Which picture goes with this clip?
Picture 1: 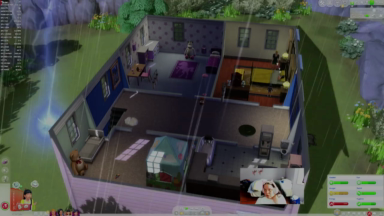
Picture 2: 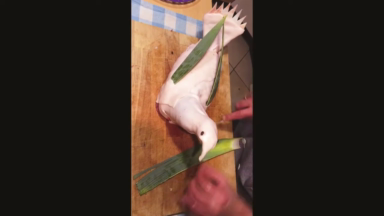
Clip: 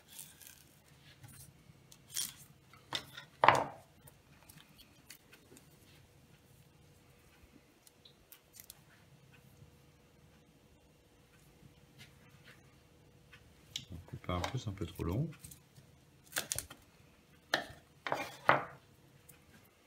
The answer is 2